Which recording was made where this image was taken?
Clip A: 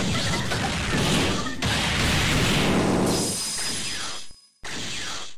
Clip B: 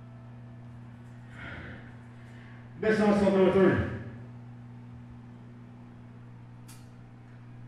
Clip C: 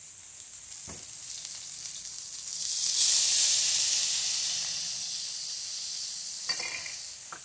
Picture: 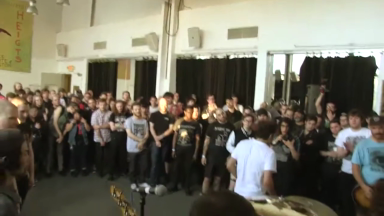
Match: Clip B